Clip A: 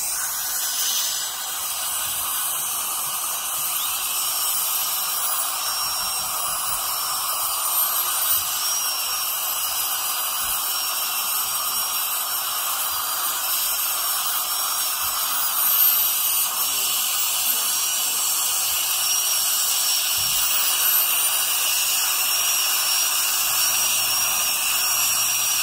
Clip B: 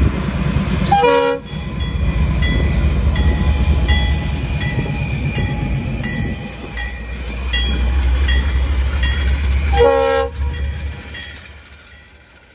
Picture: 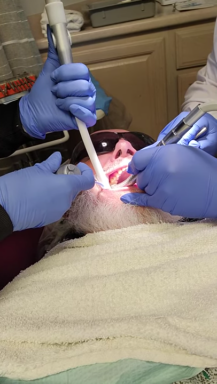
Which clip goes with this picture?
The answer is A